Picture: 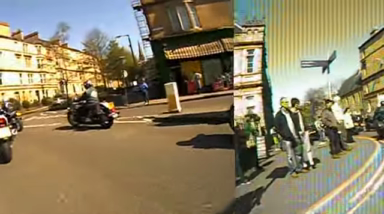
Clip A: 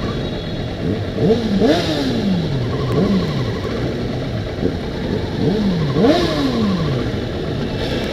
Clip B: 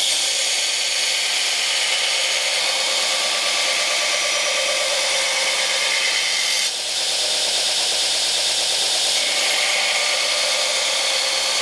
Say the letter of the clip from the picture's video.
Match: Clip A